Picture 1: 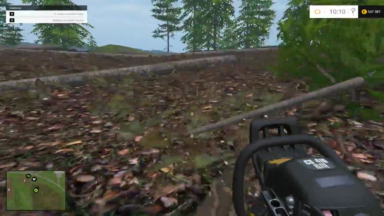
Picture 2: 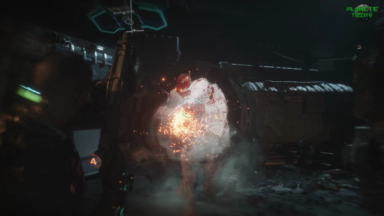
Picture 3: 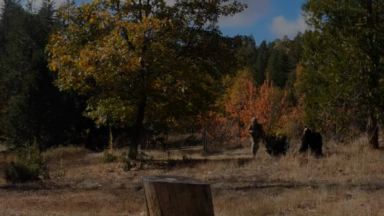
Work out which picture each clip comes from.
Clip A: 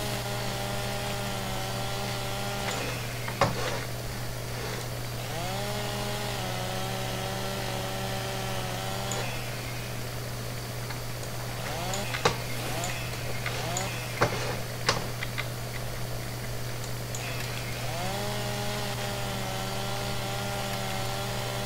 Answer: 1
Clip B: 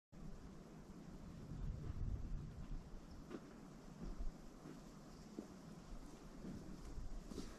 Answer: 3